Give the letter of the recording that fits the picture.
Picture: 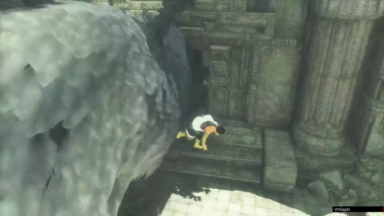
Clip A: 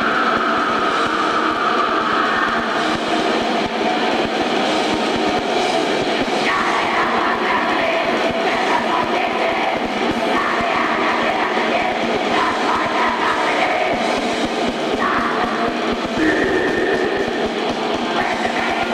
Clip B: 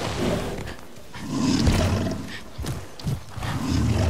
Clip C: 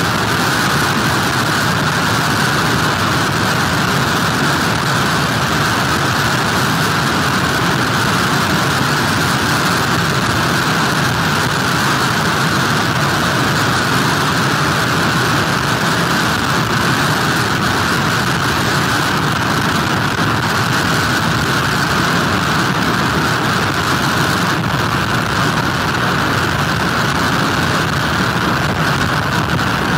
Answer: B